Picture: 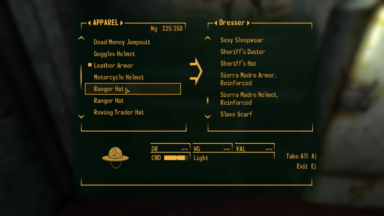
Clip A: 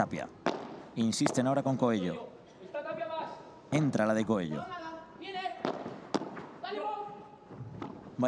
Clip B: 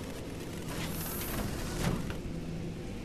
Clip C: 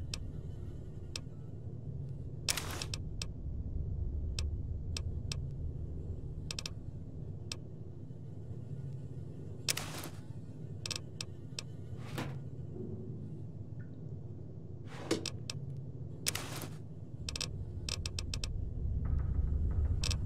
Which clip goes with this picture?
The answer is C